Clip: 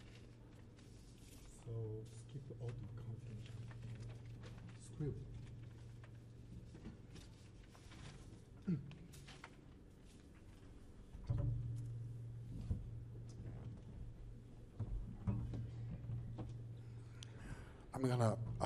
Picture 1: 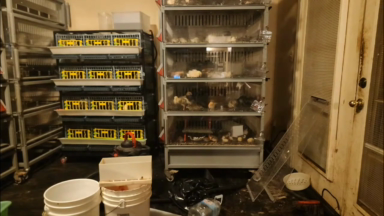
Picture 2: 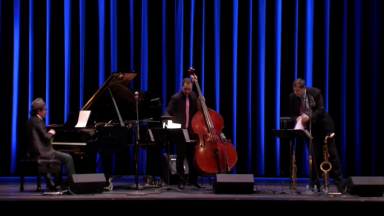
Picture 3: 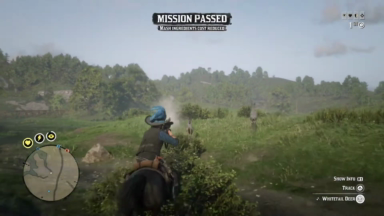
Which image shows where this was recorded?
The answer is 2